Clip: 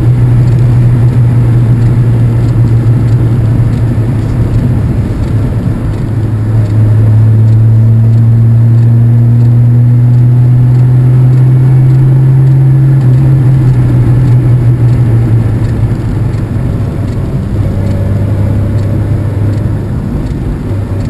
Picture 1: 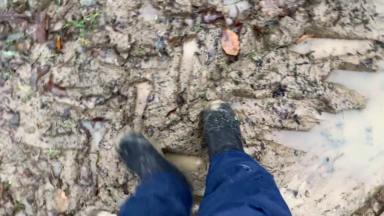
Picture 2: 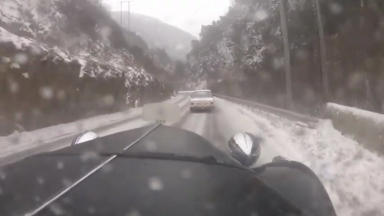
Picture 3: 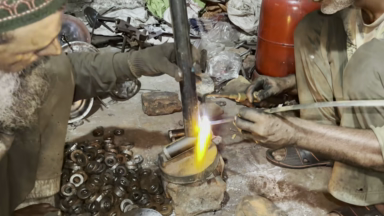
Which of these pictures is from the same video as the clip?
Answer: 2